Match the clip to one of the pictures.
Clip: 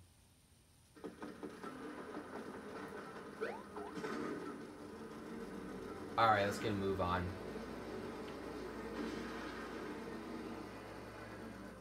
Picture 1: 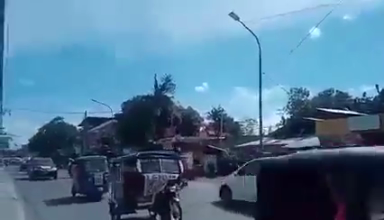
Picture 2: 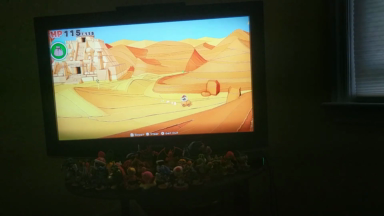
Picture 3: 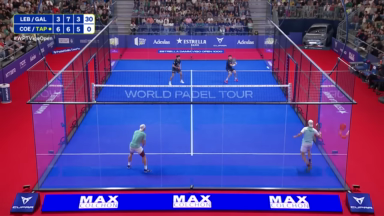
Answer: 2